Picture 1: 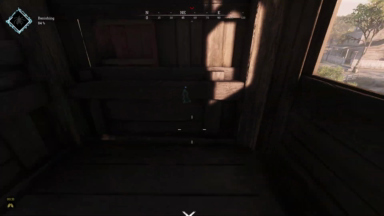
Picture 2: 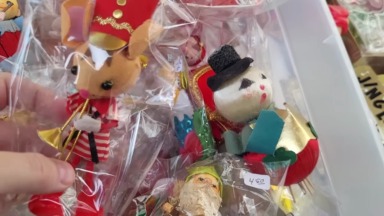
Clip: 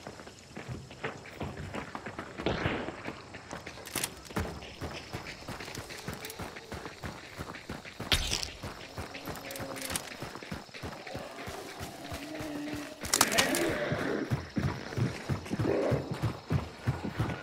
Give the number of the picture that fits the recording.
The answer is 1